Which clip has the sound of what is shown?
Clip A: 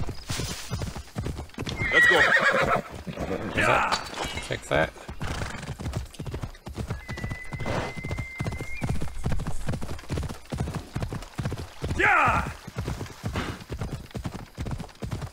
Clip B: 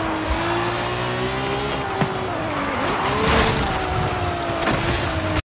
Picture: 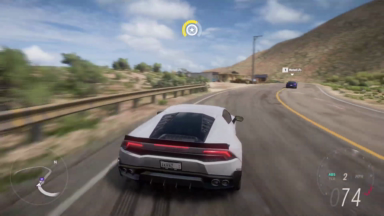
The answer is B